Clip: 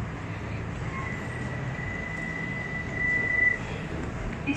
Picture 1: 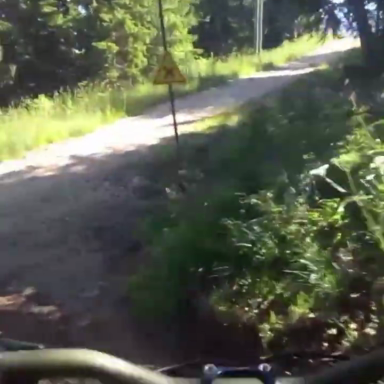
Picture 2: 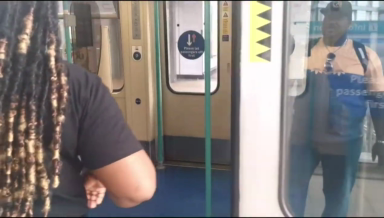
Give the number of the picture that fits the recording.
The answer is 2